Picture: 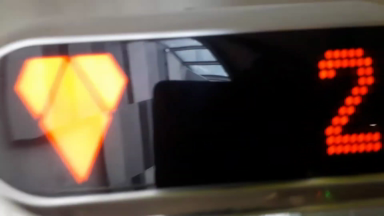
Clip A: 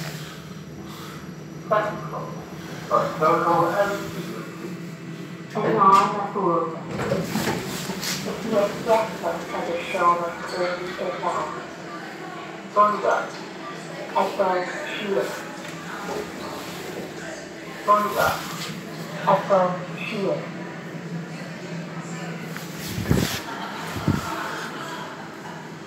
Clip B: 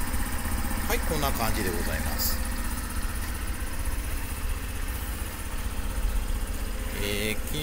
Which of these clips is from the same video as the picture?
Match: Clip A